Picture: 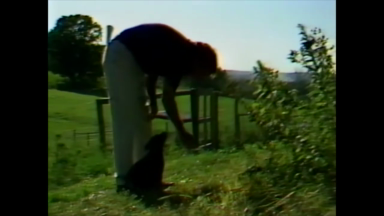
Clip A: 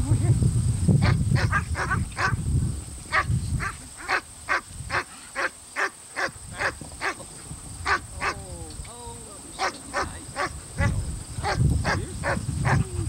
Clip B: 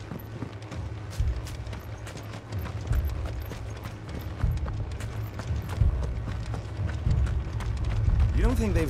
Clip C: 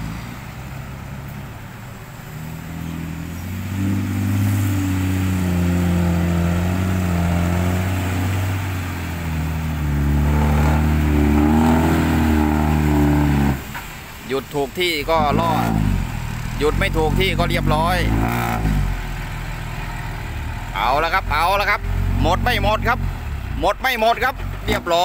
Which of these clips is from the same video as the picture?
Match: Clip A